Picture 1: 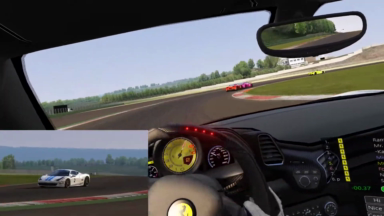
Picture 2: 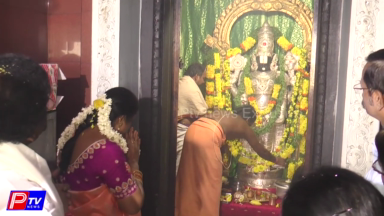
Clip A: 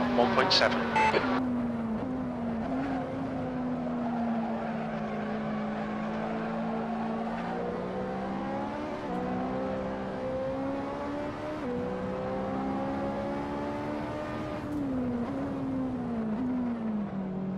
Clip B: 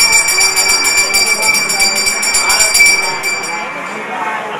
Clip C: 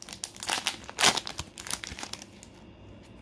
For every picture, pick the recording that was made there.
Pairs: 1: A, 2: B